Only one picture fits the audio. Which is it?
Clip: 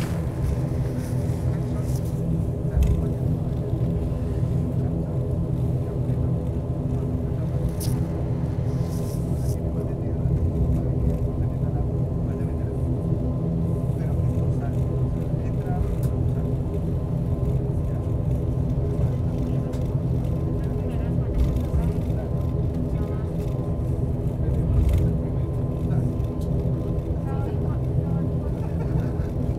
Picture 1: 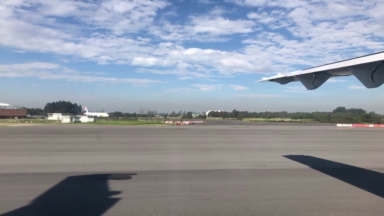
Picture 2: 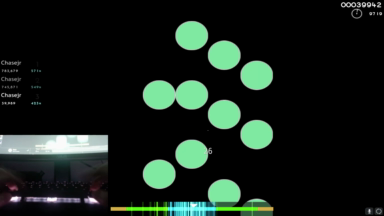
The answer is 1